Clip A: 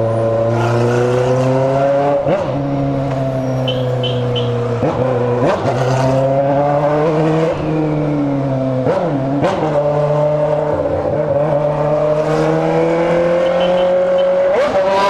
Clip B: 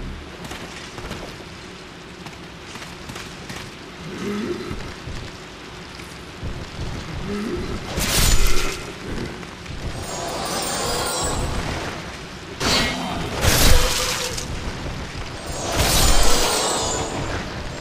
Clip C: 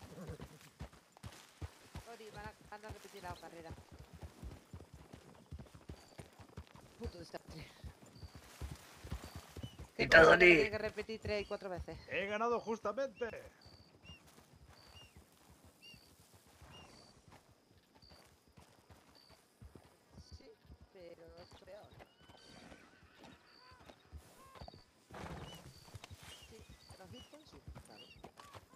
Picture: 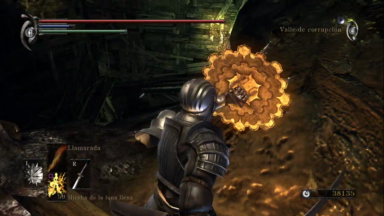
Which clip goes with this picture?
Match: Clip B